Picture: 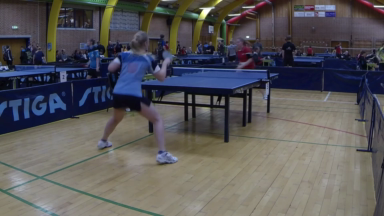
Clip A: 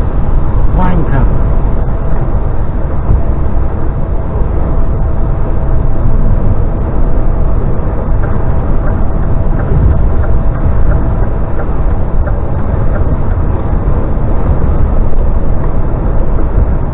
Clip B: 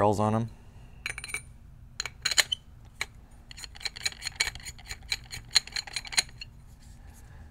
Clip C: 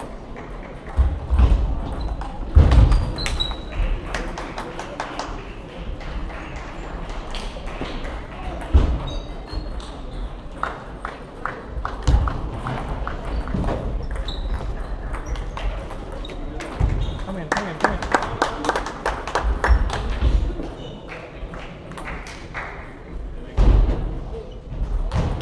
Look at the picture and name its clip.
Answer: C